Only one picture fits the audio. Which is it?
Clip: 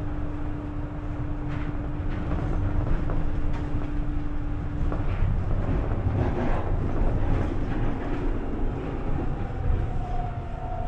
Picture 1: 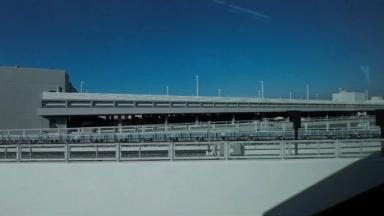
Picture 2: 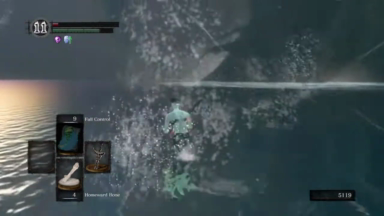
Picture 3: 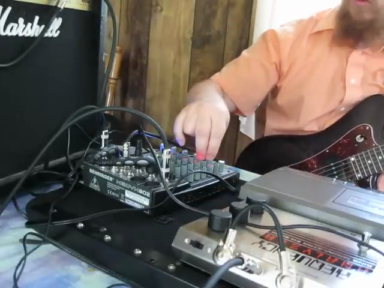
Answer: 1